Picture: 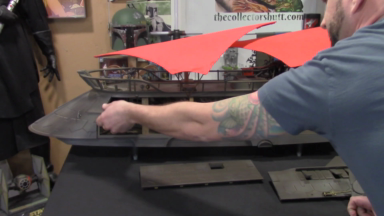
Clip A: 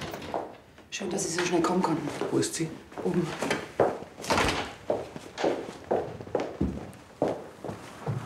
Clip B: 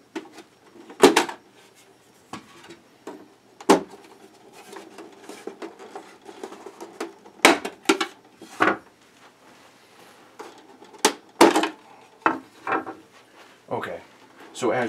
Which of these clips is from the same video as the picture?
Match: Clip B